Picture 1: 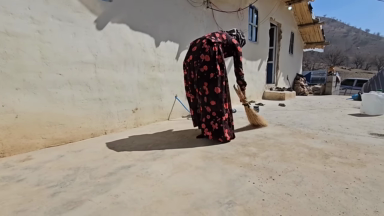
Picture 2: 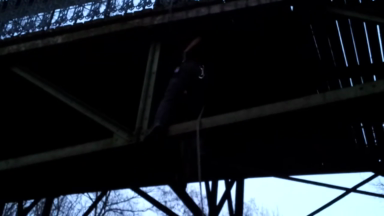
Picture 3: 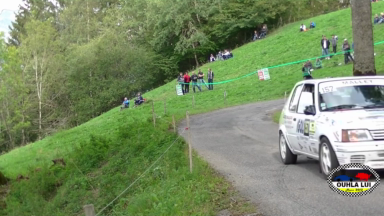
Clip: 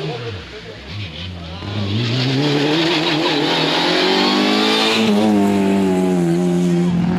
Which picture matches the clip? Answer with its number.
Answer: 3